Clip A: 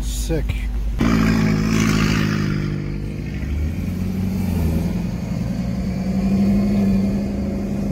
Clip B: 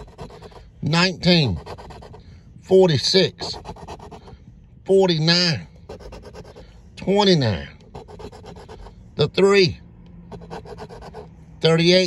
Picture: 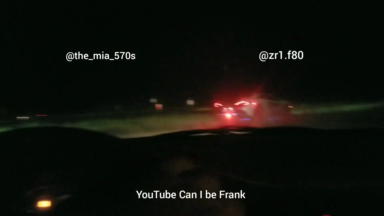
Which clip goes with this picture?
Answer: A